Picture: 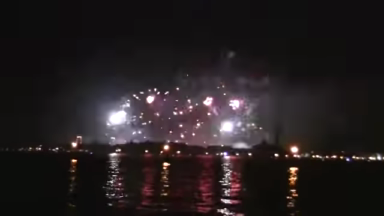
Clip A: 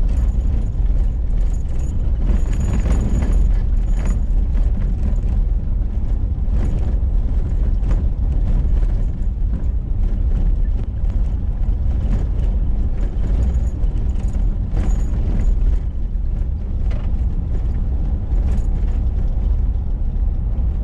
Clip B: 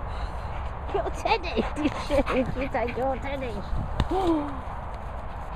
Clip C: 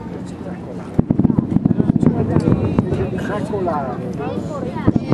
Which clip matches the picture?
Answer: C